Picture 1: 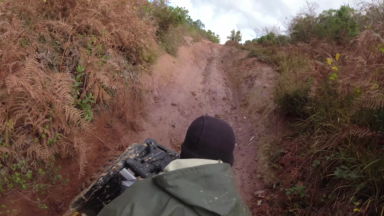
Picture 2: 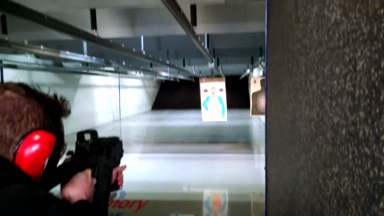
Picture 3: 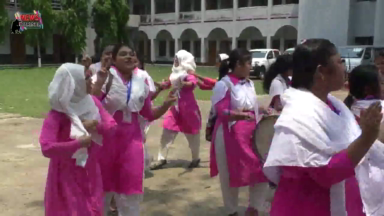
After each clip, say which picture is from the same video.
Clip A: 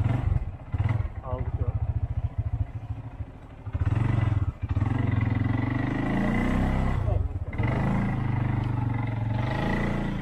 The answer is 1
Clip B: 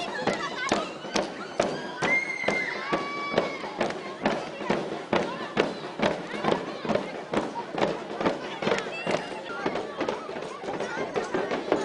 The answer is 3